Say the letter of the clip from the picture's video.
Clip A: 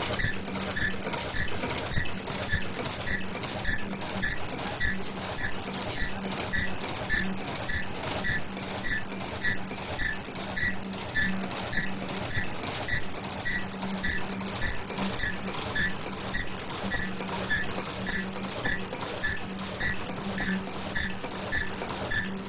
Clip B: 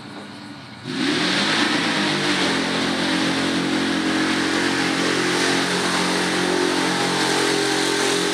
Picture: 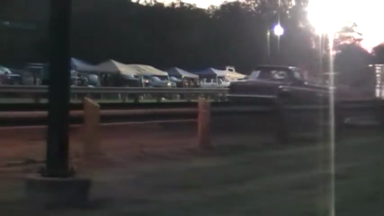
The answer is B